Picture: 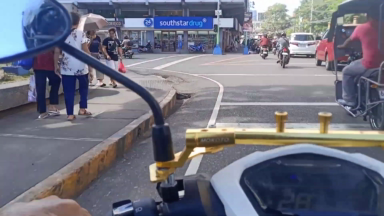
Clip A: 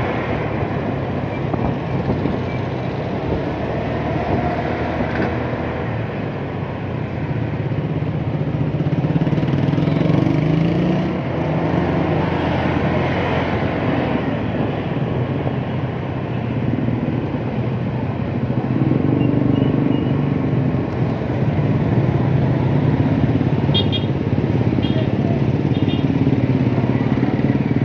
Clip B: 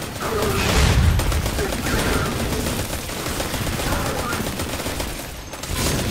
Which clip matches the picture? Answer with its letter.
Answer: A